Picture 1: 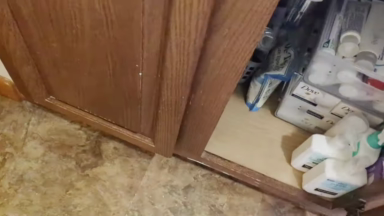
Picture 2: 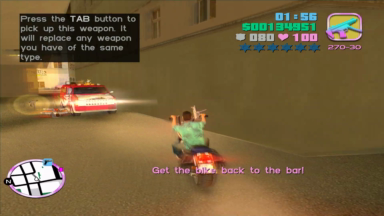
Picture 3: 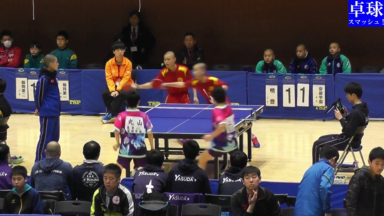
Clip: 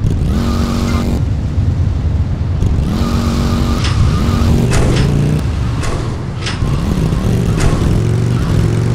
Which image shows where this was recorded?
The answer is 2